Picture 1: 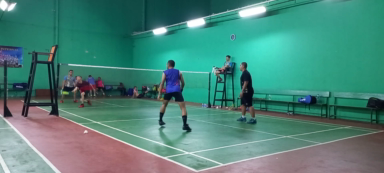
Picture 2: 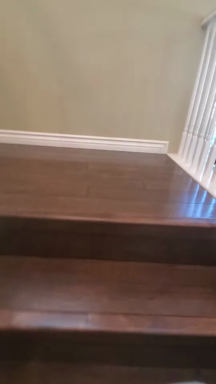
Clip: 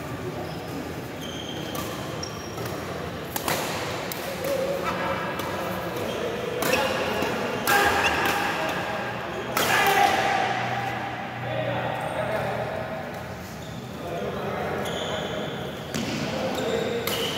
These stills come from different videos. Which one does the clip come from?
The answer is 1